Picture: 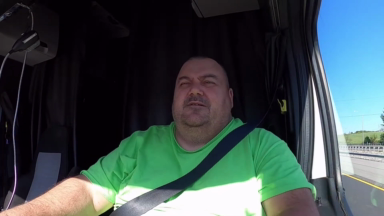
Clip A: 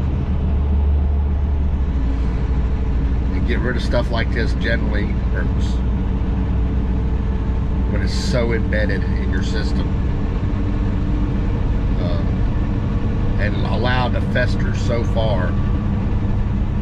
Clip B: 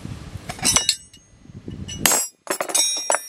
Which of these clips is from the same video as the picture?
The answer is A